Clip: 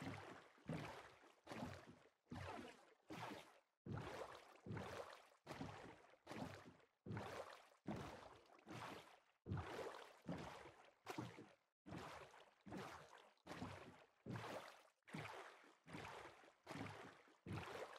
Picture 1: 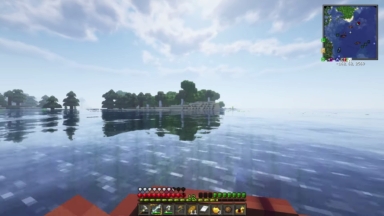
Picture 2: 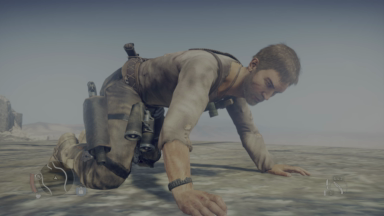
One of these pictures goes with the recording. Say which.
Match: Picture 1